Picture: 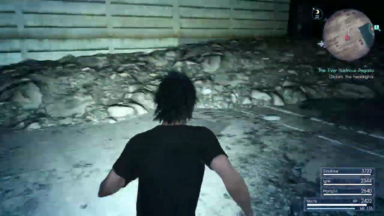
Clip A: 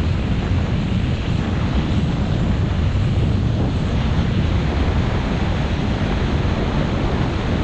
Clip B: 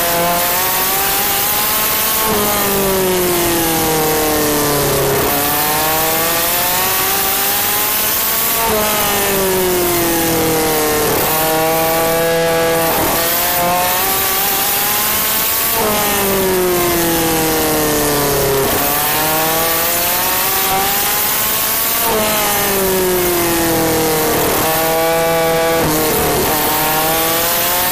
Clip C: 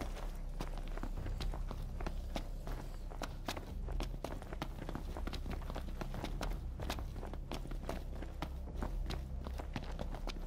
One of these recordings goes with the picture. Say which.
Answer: C